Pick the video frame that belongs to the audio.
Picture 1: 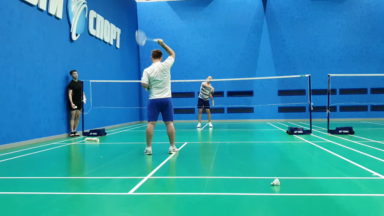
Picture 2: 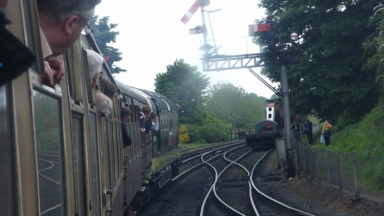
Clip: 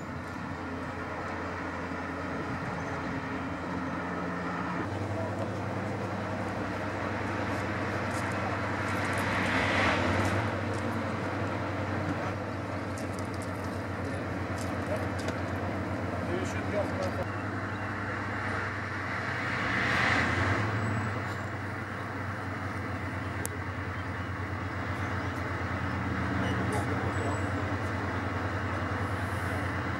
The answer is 2